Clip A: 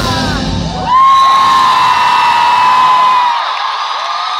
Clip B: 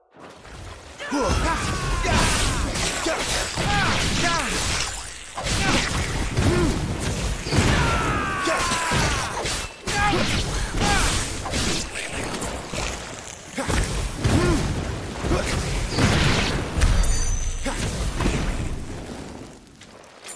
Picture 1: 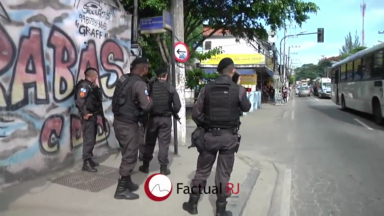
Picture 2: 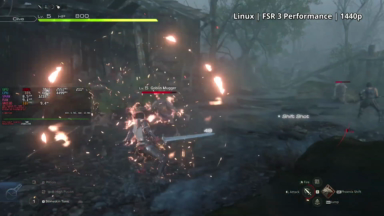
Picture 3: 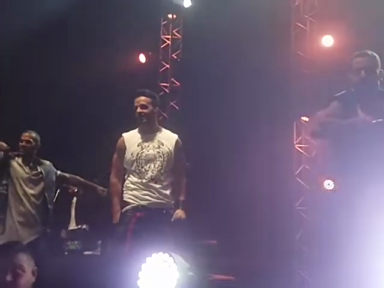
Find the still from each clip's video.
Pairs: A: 3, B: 2